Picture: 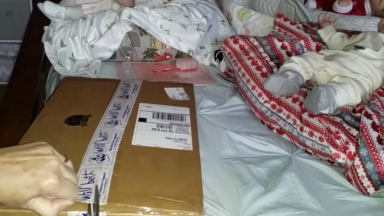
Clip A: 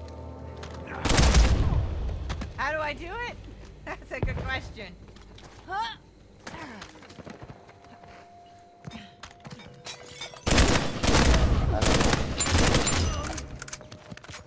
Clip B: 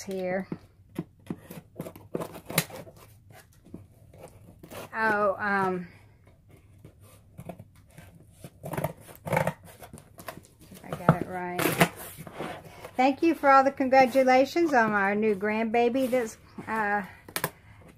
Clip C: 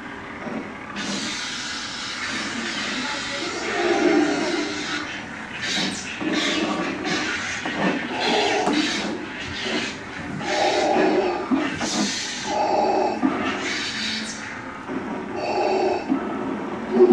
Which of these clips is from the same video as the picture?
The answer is B